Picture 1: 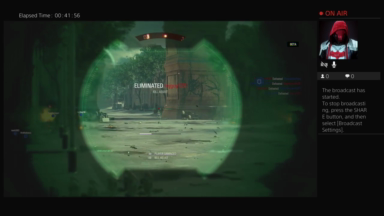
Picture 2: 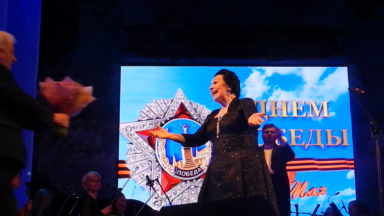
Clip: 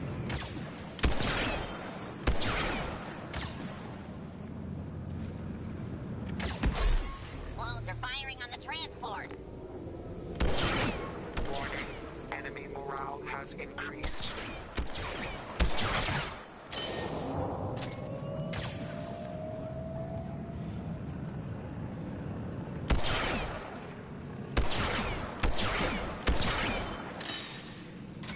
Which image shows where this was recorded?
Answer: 1